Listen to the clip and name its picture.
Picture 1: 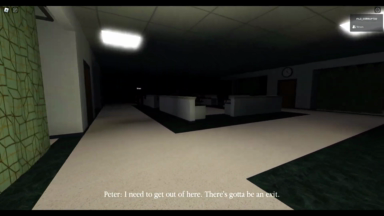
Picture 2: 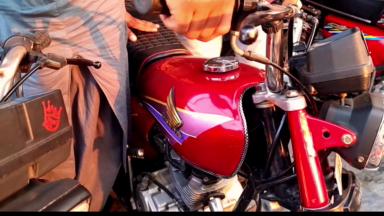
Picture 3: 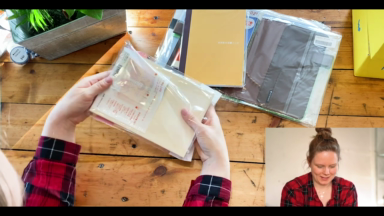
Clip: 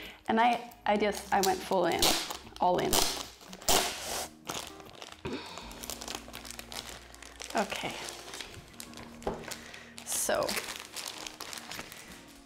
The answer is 3